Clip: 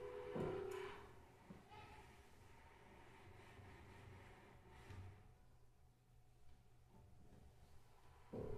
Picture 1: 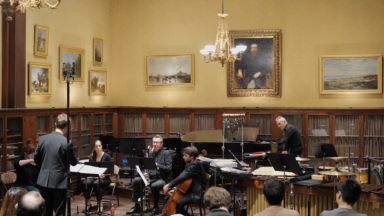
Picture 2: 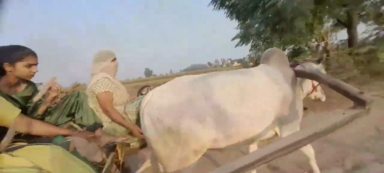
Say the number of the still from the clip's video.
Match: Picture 1